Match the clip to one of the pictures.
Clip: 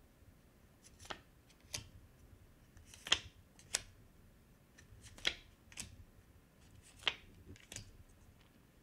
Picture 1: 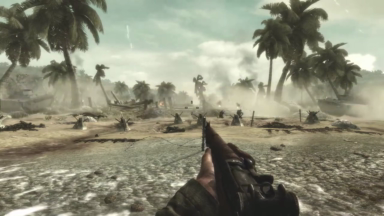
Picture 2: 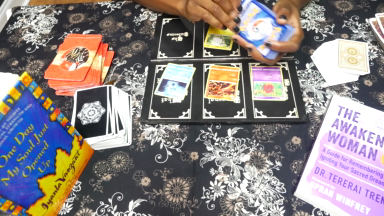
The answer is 2